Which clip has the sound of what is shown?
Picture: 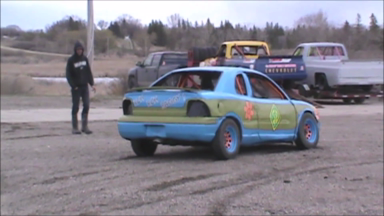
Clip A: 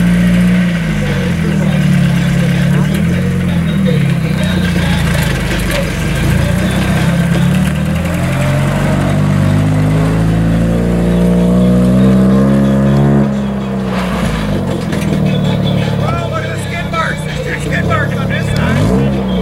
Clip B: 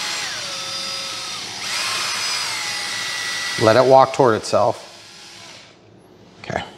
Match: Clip A